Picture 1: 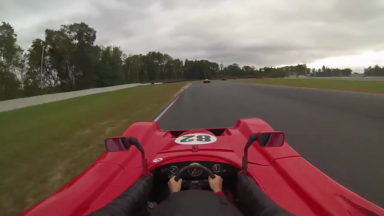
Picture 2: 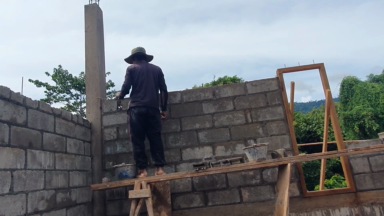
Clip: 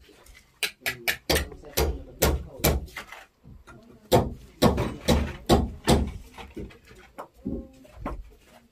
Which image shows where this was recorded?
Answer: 2